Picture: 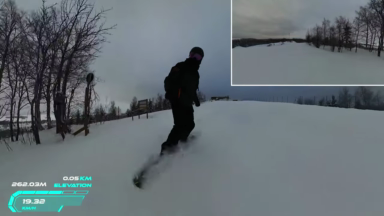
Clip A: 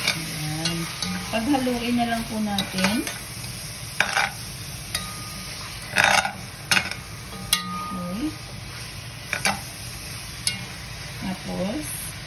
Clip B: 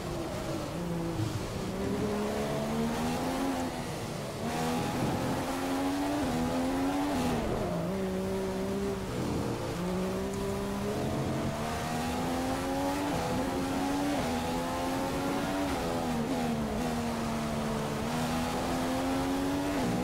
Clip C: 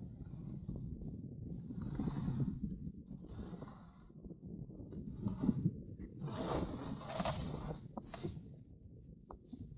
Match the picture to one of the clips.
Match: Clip C